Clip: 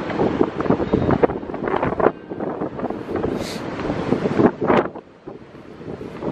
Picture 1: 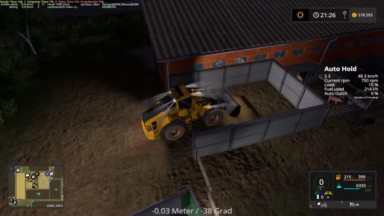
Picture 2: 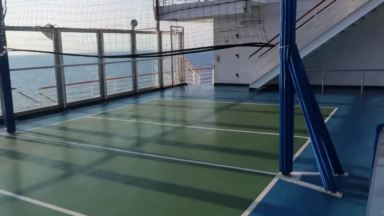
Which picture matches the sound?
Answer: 2